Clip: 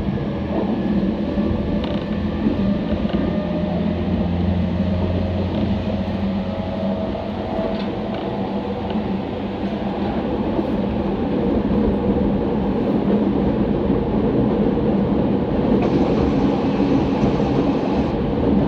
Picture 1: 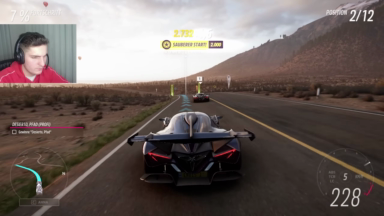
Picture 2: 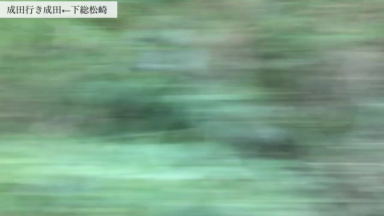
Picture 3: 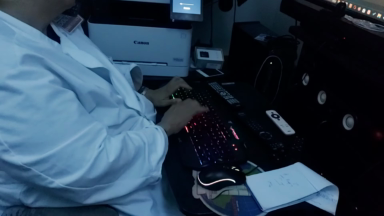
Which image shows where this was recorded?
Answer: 2